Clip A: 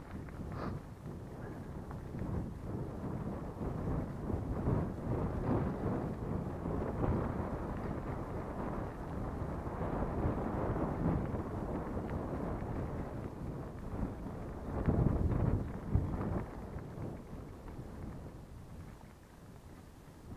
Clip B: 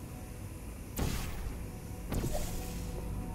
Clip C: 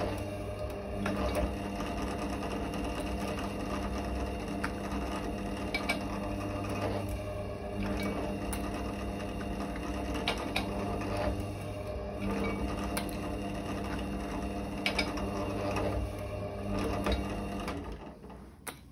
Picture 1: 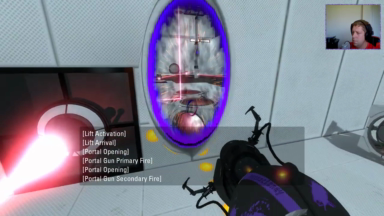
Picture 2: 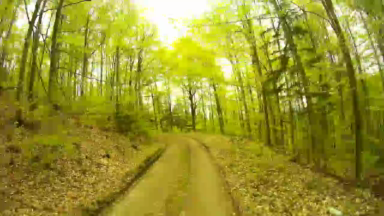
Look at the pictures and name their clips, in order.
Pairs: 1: B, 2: A